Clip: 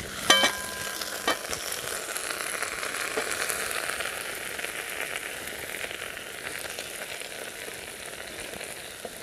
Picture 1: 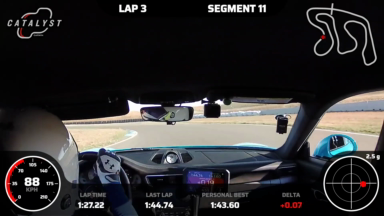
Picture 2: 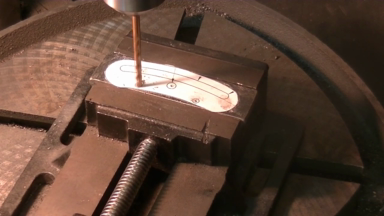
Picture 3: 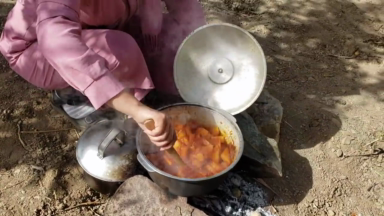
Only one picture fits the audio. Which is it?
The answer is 3